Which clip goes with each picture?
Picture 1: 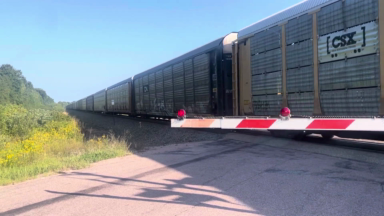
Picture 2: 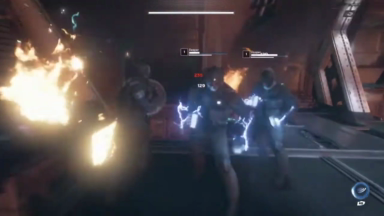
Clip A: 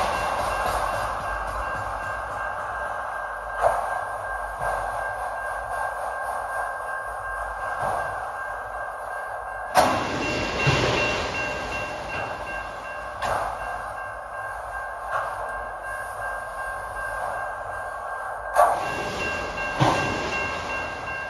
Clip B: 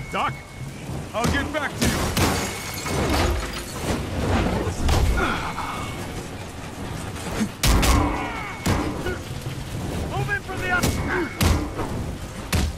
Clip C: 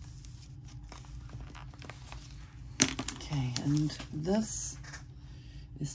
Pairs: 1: A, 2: B